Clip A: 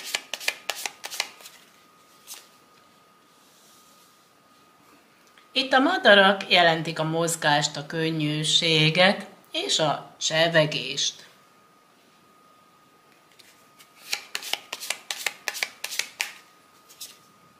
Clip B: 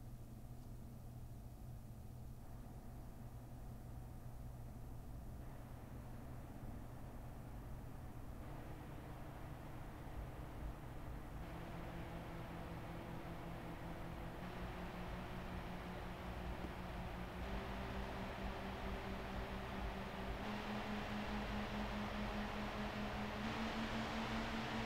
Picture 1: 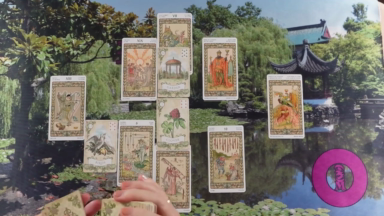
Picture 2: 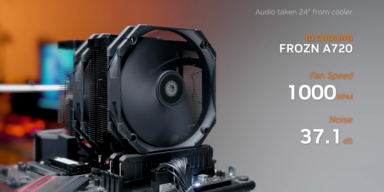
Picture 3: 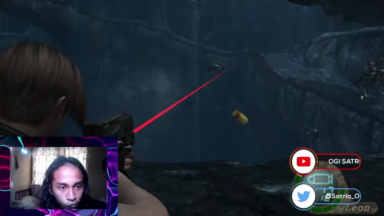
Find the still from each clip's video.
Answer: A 1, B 2